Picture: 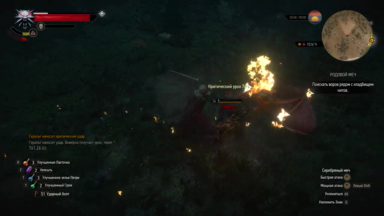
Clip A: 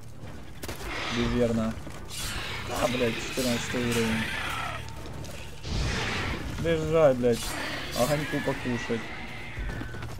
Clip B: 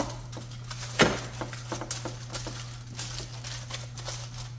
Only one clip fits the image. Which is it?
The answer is A